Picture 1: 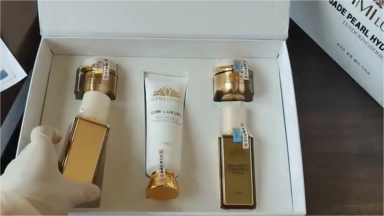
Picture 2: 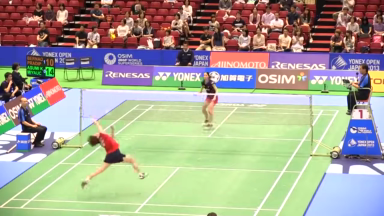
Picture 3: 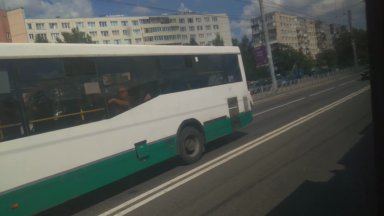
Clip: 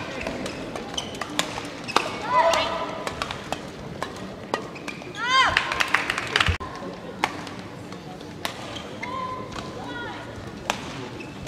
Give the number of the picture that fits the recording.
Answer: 2